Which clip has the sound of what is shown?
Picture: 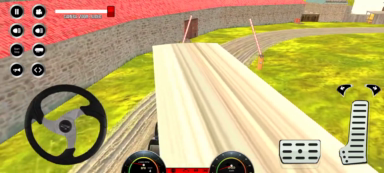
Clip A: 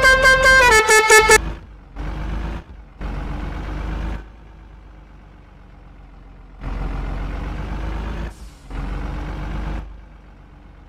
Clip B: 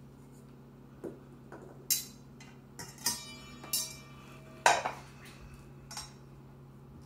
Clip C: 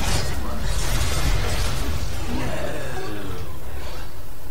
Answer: A